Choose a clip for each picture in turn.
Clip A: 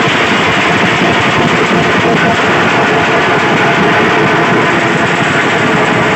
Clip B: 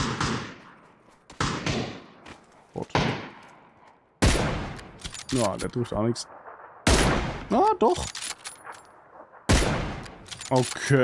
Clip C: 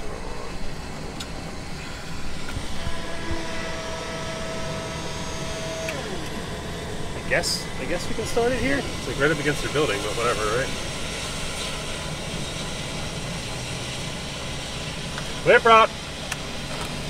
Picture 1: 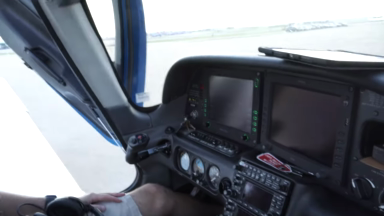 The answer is C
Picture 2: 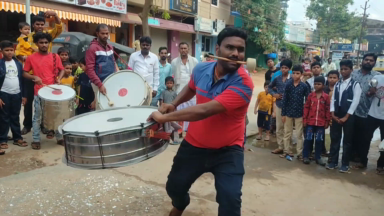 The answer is A